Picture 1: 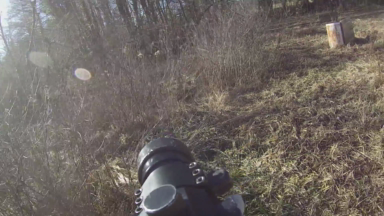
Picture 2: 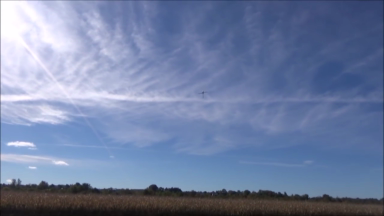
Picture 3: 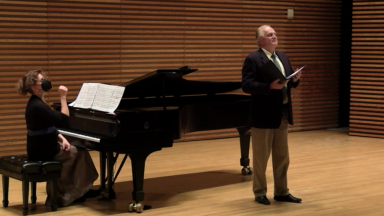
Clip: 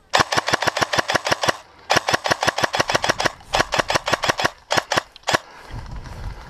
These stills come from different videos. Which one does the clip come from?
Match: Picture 1